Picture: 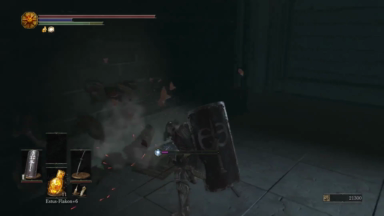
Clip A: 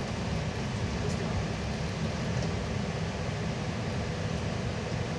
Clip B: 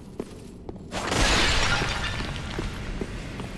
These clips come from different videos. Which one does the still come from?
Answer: B